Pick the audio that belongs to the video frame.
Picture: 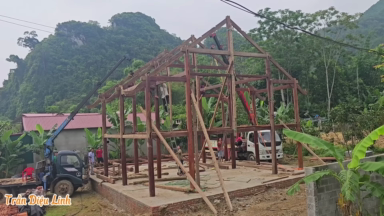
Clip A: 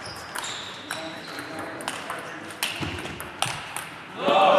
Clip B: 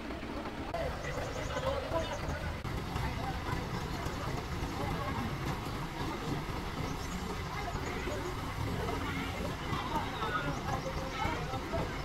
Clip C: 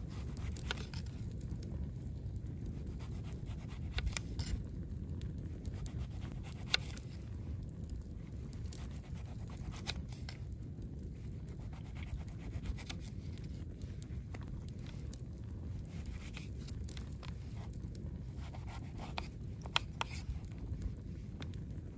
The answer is B